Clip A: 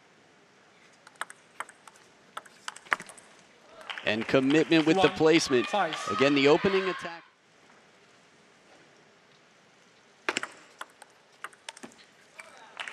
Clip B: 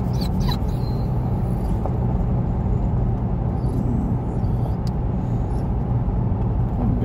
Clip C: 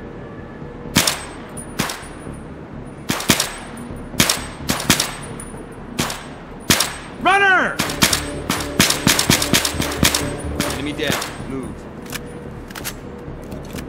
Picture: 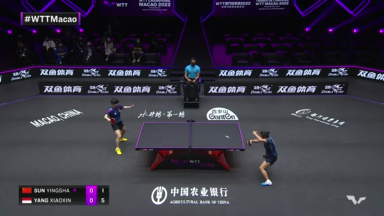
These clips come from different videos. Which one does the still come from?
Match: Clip A